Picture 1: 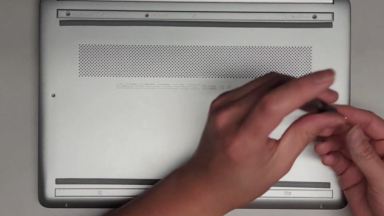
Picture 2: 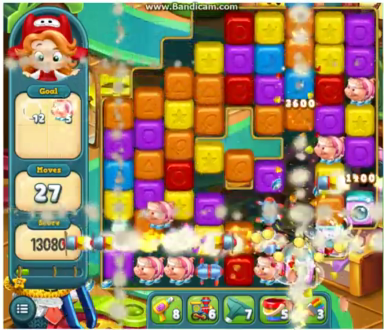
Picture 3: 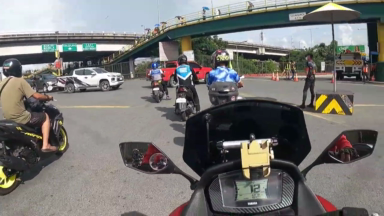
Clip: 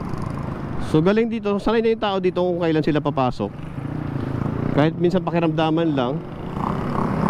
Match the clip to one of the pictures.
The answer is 3